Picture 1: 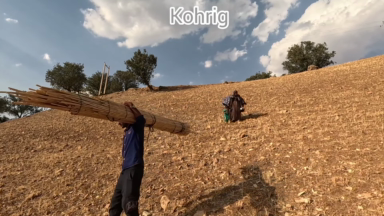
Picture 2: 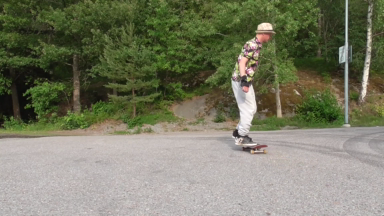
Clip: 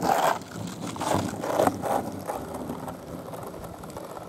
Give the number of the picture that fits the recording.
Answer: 2